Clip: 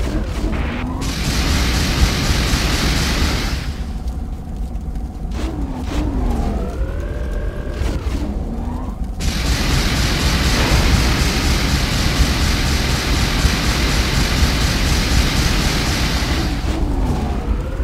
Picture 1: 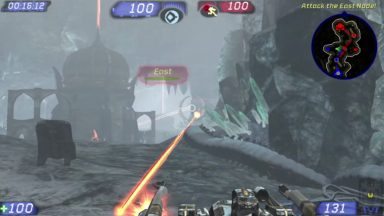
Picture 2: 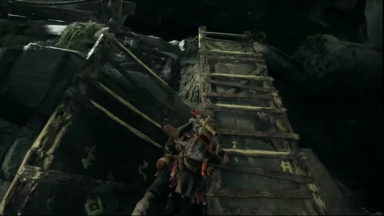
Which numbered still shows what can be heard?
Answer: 1